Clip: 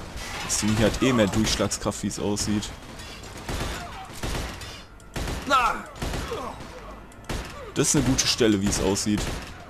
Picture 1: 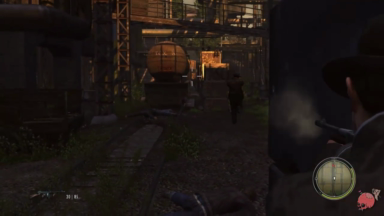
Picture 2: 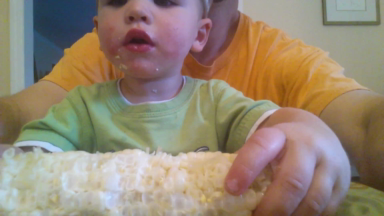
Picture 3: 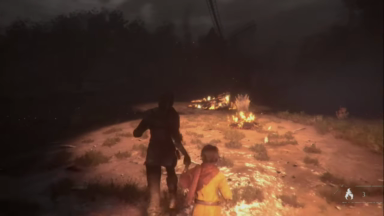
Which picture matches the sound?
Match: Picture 1